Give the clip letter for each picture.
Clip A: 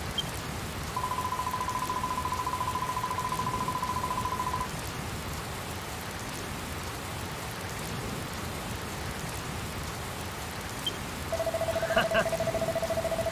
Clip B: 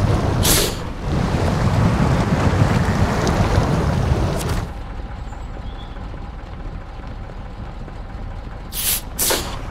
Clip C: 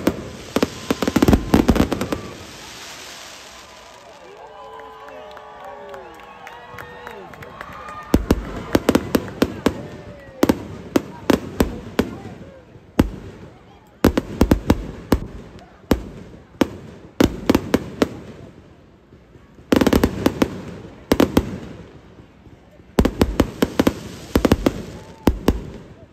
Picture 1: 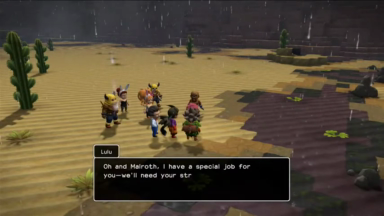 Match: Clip A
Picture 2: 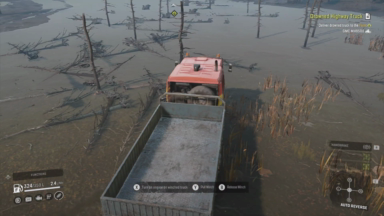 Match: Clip B